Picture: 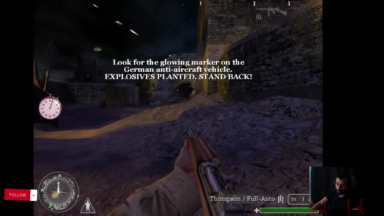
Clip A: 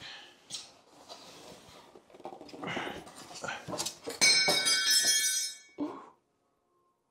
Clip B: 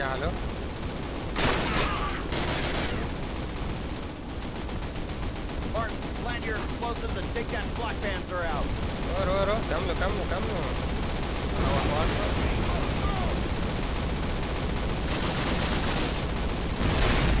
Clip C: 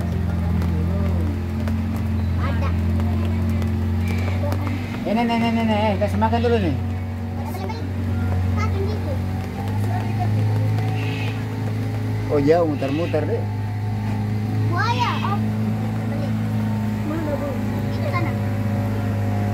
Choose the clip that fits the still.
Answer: B